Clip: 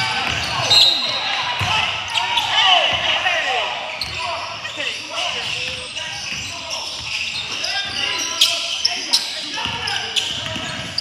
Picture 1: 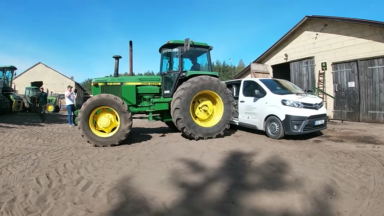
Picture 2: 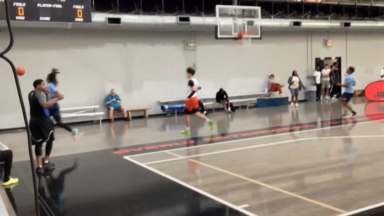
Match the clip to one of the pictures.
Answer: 2